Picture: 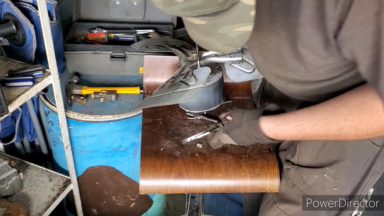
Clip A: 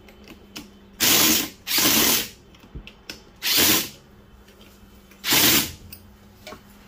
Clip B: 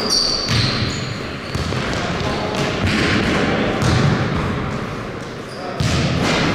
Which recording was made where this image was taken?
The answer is A